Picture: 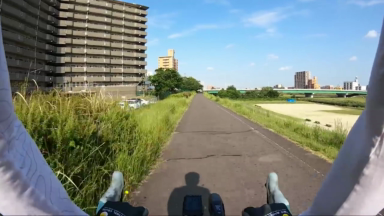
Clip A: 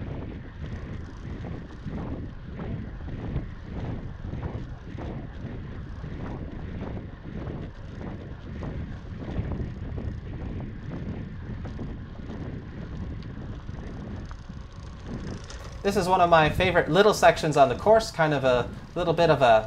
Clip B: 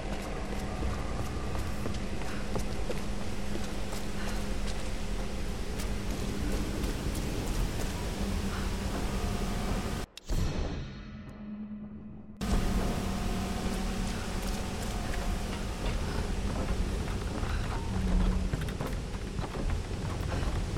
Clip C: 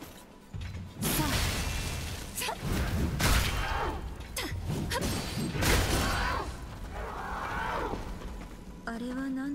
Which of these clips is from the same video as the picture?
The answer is A